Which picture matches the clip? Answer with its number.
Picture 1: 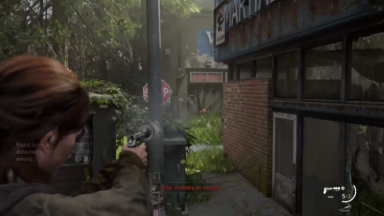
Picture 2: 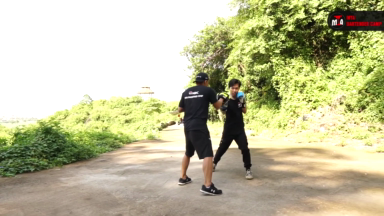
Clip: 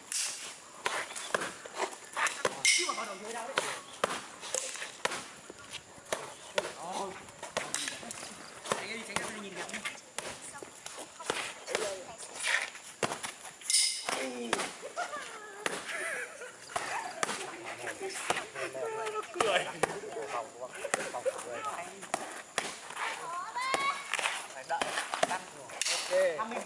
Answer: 2